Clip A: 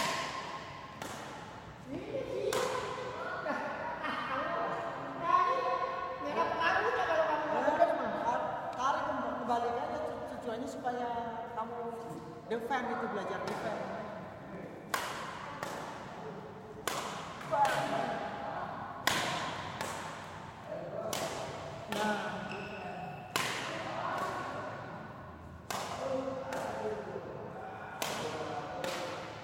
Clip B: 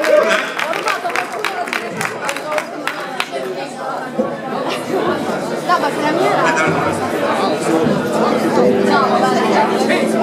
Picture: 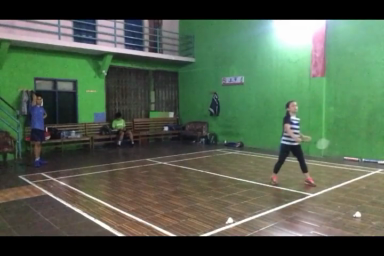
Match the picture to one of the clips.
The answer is A